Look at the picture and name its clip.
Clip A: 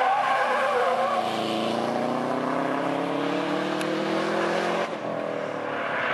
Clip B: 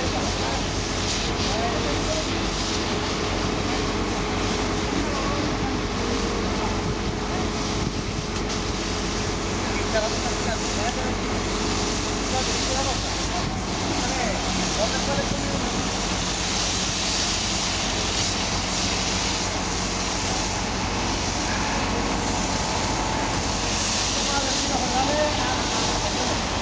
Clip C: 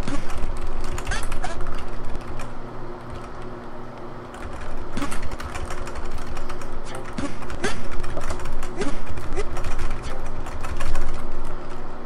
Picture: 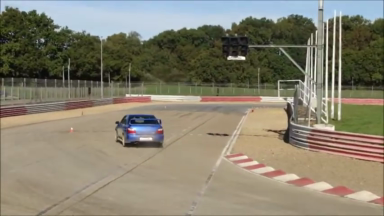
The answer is A